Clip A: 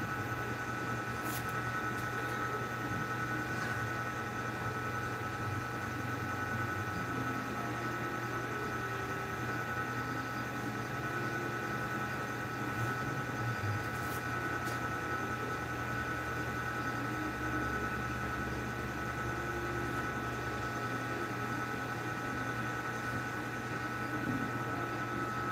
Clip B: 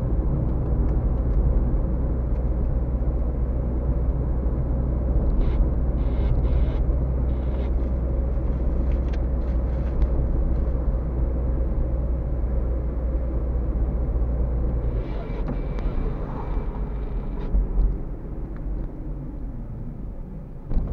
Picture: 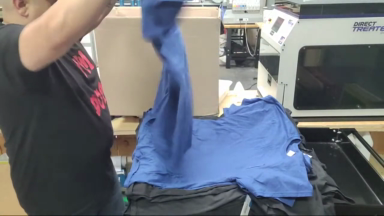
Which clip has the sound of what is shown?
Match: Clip A